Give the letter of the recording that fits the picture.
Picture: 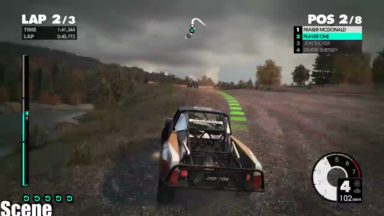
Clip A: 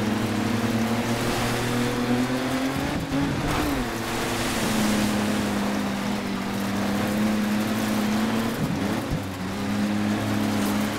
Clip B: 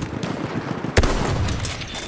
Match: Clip A